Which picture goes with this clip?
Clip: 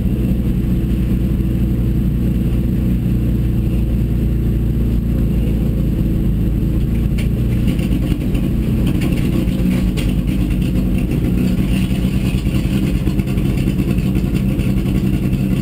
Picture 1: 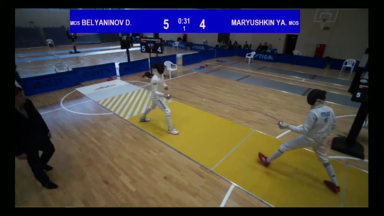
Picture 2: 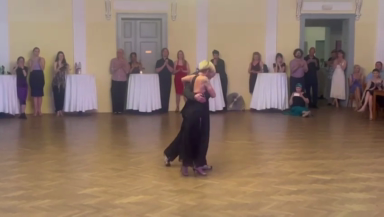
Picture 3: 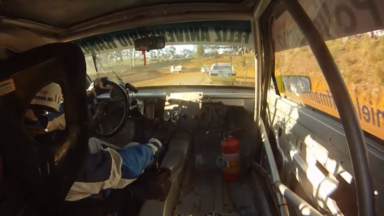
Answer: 3